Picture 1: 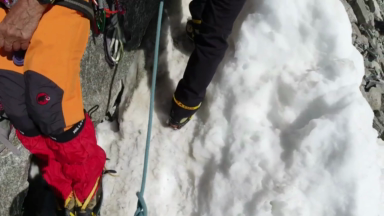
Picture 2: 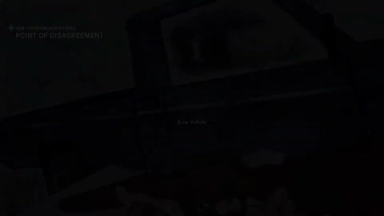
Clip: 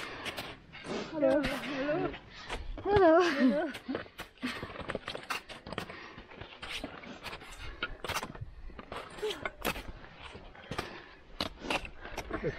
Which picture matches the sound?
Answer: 1